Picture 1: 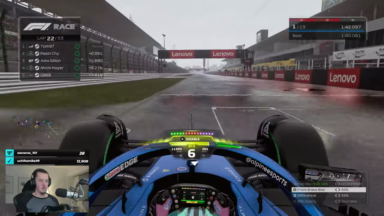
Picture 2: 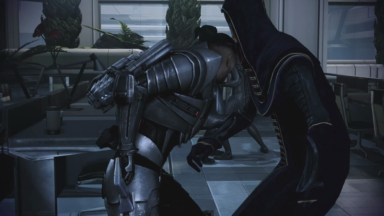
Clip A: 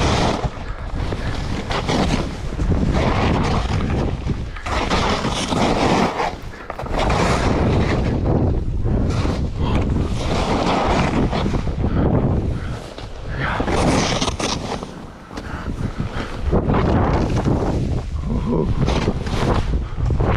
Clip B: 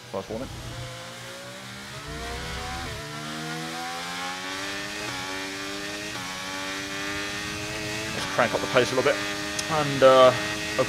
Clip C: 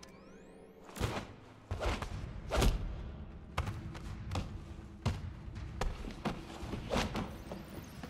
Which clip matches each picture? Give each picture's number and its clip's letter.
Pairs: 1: B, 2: C